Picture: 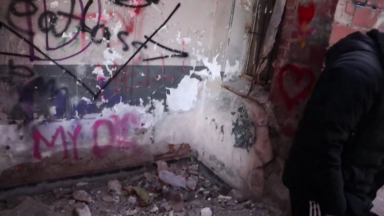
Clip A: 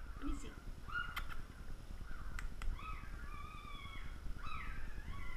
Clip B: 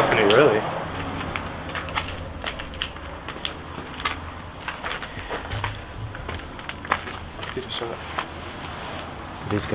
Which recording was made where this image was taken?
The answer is B